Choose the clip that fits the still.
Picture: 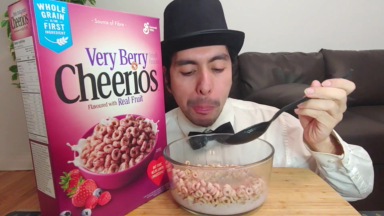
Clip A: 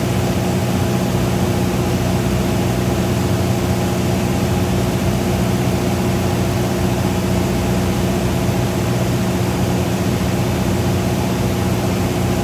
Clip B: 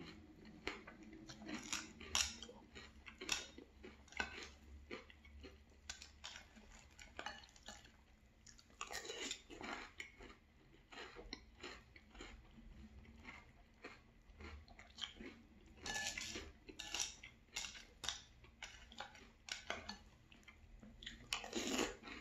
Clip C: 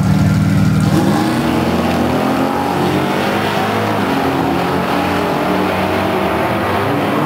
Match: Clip B